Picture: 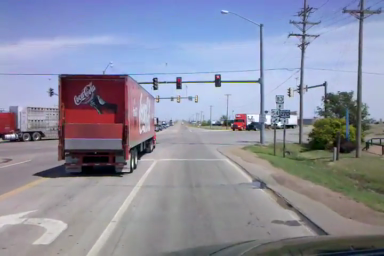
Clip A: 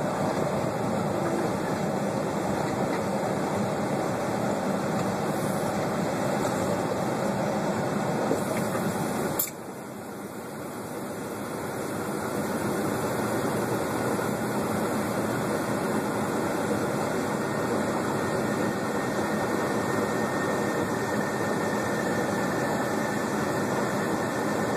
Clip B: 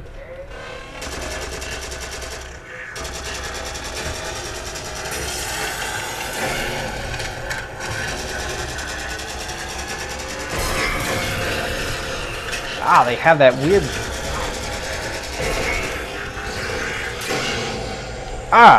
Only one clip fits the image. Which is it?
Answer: A